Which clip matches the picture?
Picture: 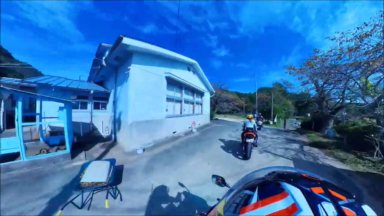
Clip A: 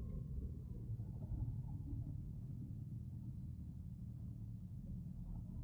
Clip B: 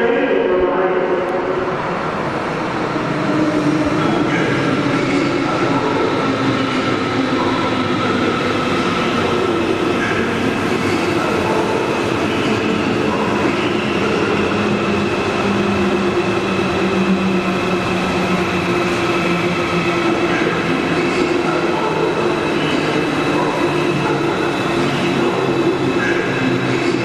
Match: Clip A